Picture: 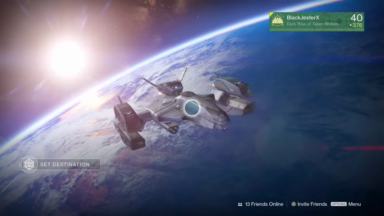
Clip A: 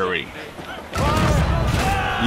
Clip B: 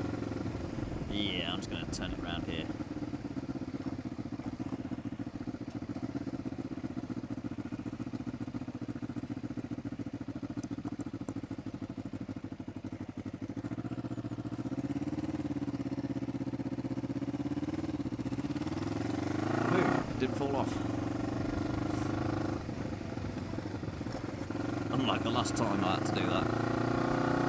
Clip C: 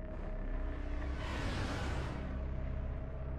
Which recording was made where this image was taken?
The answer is C